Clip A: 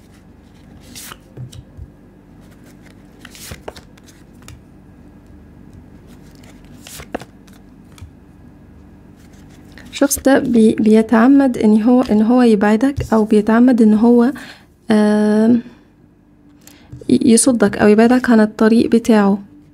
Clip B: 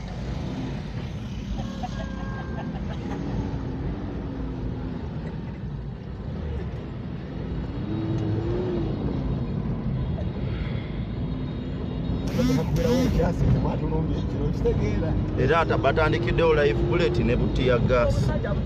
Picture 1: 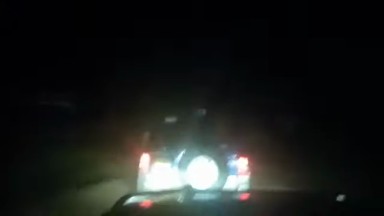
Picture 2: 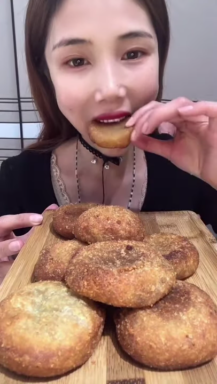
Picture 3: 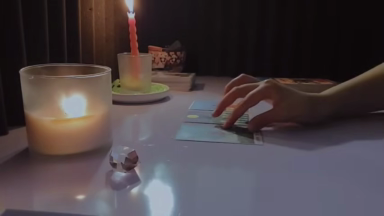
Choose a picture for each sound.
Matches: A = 3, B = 1